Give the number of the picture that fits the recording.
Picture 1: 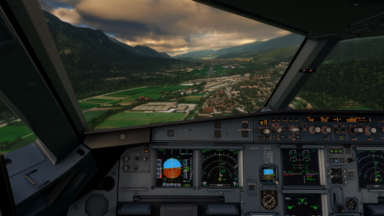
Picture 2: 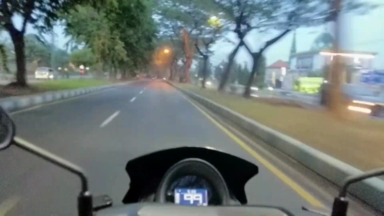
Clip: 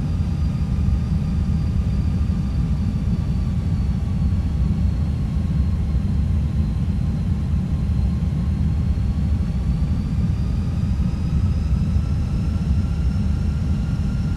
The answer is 1